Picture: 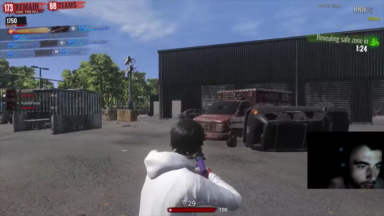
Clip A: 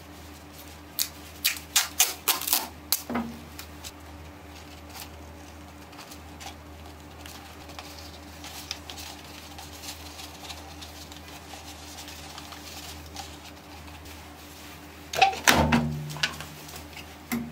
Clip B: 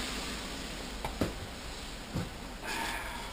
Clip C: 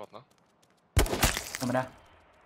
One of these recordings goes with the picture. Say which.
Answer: C